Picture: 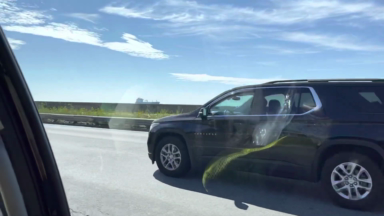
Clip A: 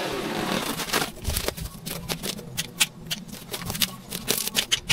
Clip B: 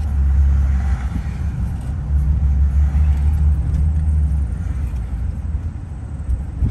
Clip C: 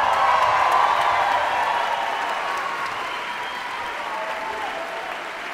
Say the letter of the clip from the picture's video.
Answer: B